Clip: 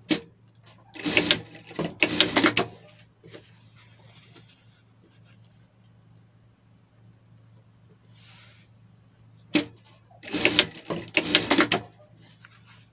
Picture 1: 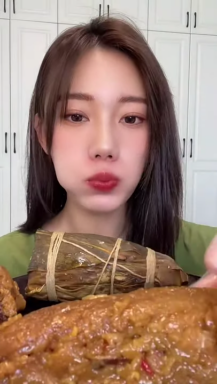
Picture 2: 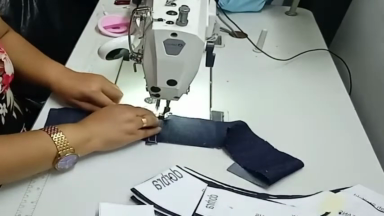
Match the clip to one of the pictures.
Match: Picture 2